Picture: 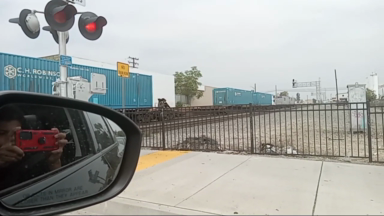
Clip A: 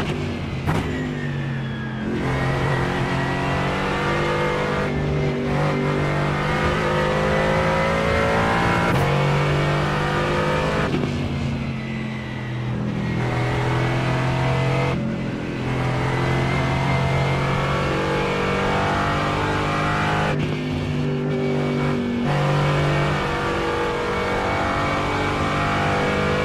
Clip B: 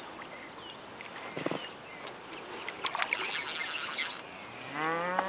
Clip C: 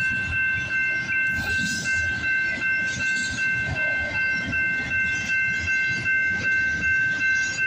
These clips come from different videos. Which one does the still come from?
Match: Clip C